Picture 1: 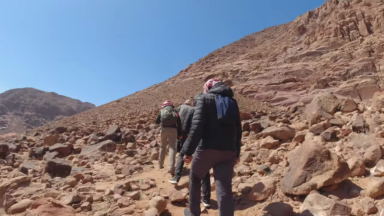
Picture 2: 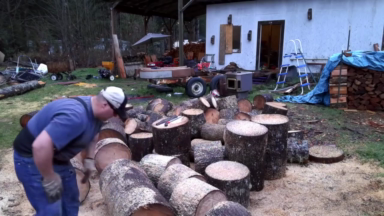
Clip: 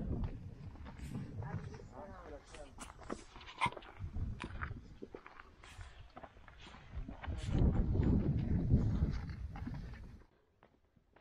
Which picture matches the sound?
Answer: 1